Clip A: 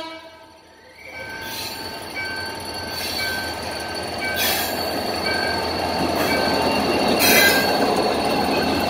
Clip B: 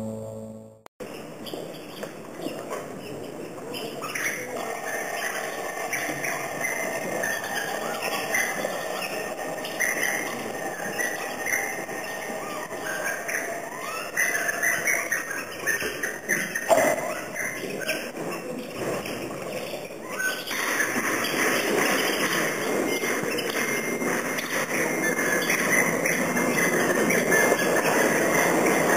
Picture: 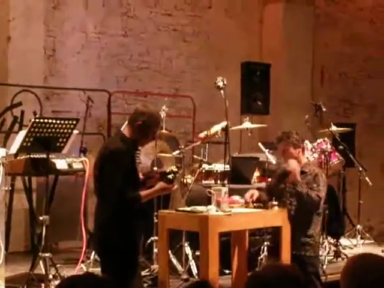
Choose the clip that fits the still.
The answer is B